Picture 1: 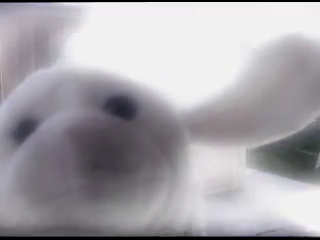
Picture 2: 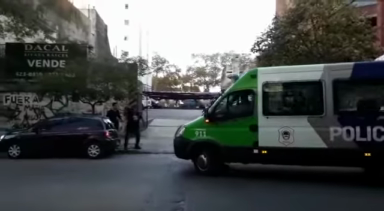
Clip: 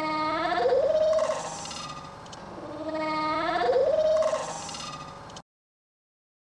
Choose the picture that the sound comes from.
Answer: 1